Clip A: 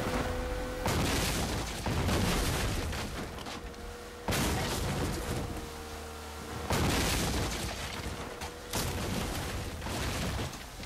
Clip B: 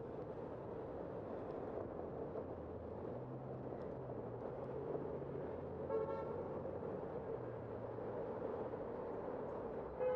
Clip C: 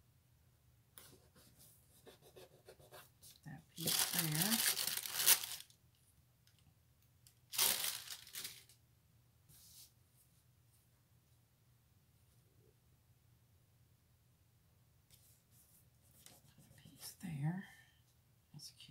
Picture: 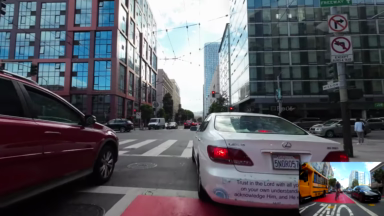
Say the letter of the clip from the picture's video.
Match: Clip B